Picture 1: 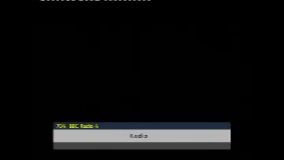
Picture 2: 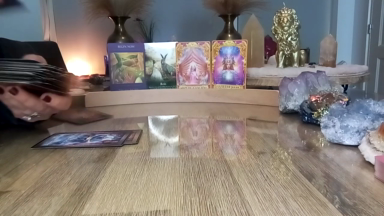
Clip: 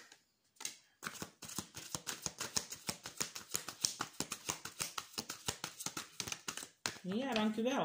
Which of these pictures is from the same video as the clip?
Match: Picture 2